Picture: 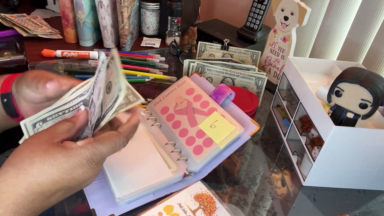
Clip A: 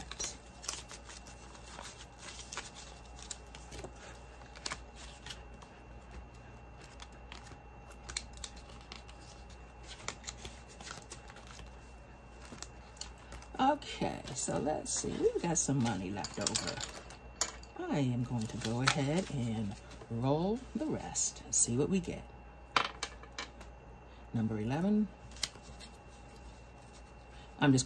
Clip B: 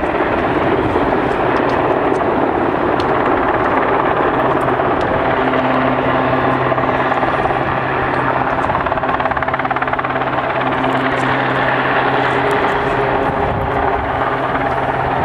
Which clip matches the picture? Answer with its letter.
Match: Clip A